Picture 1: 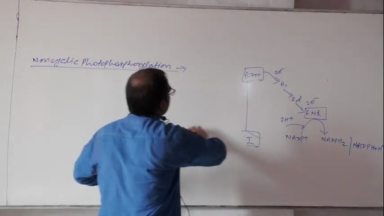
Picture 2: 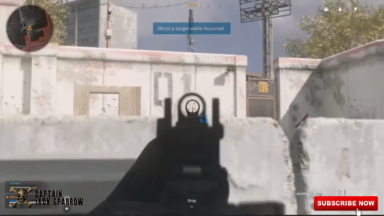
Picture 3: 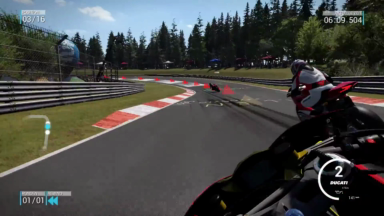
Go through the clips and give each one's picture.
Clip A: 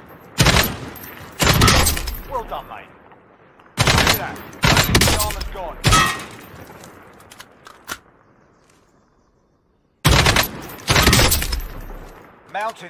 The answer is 2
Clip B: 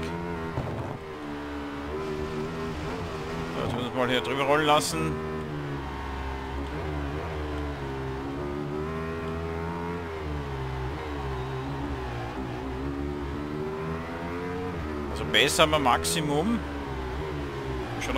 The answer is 3